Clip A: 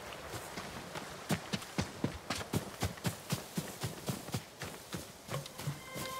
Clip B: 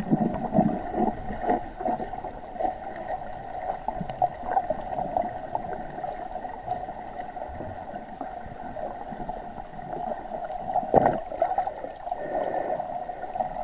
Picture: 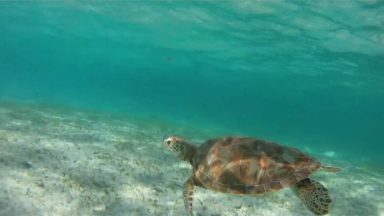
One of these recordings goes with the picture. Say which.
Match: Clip B